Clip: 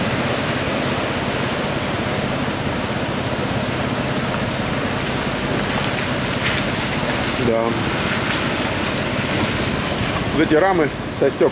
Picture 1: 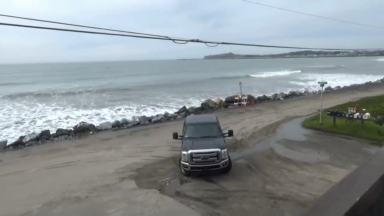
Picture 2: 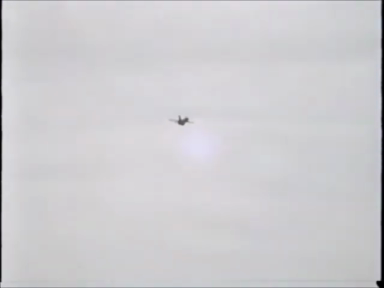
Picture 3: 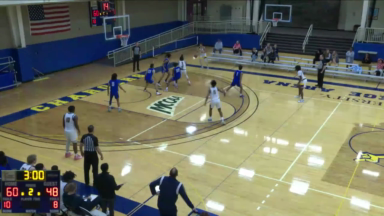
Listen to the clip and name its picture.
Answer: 1